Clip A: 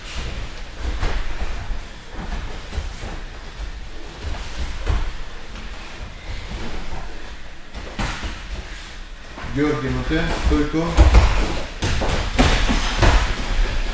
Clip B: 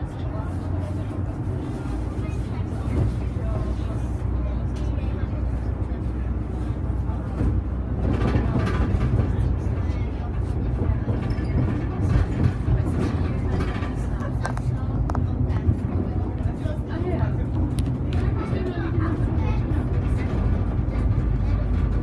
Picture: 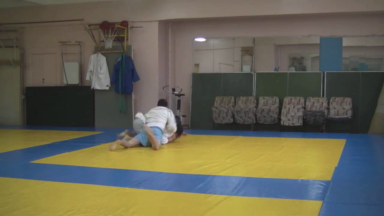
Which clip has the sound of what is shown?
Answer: A